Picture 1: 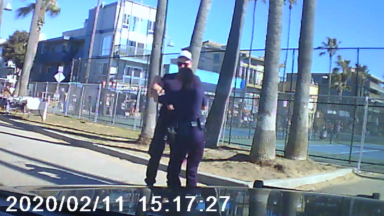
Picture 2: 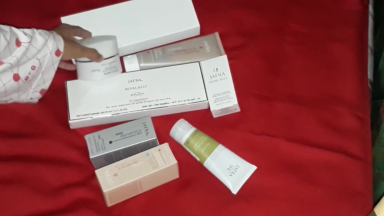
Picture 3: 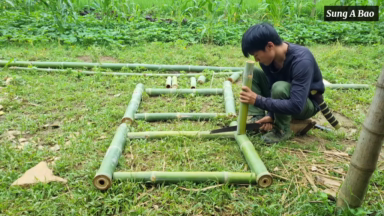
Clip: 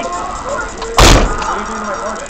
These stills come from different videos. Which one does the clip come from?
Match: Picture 1